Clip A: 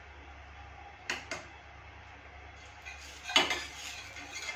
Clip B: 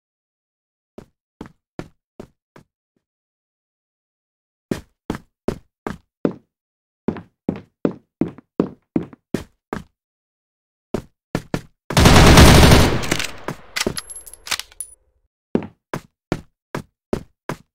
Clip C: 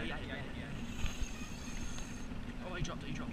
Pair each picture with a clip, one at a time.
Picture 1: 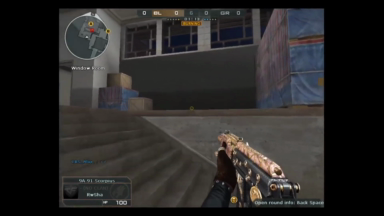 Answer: B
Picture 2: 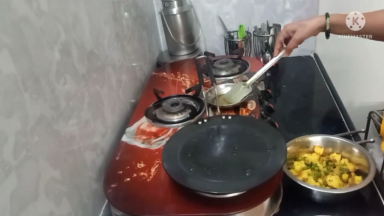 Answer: A